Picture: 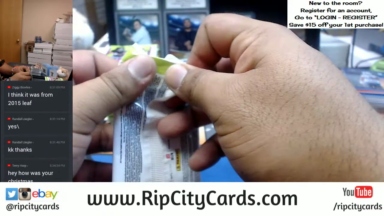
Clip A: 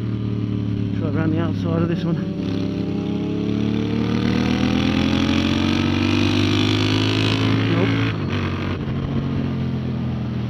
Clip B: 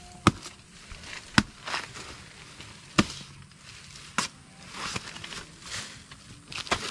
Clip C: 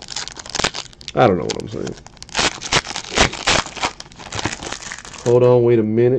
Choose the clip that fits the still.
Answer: C